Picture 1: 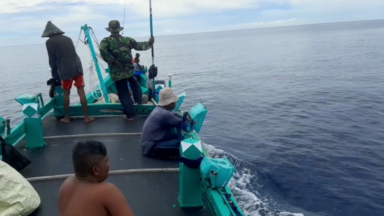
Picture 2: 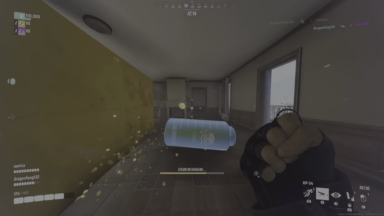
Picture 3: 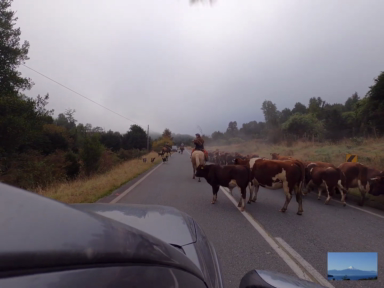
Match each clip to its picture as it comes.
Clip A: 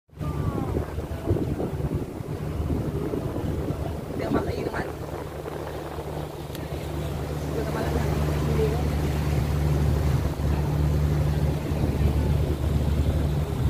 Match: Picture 1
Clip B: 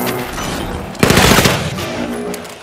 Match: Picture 2